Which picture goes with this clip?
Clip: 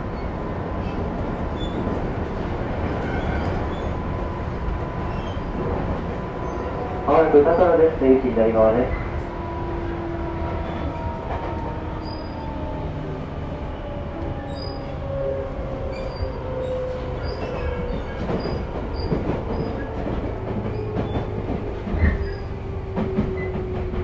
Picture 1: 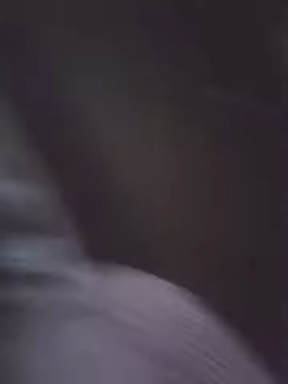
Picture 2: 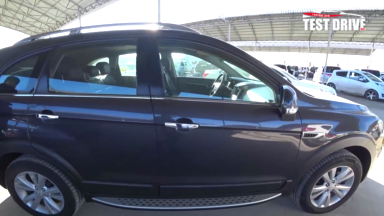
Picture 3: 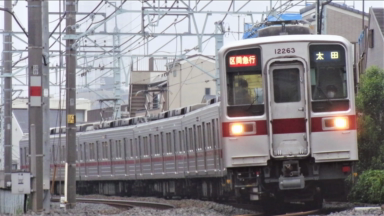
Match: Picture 3